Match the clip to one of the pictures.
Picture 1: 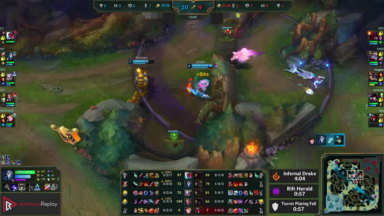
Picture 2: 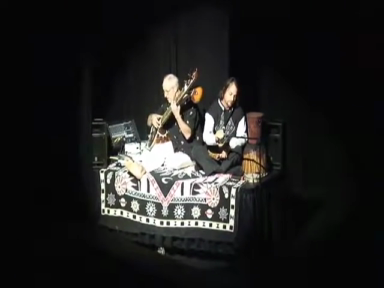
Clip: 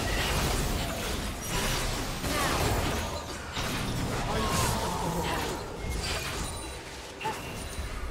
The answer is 1